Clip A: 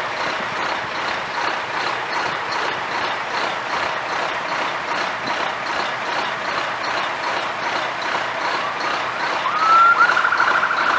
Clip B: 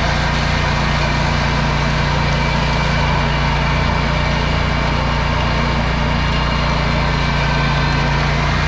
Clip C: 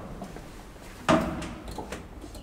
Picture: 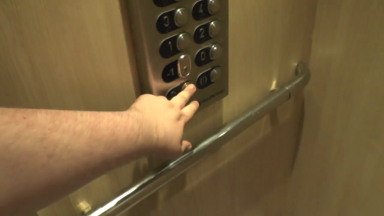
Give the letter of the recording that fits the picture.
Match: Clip C